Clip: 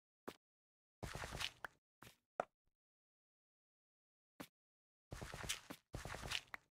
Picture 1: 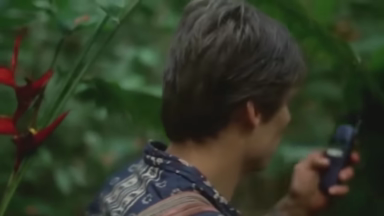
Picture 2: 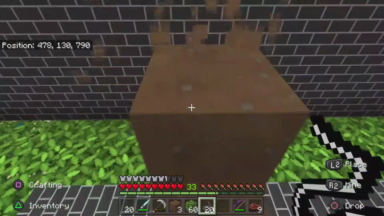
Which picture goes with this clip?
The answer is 2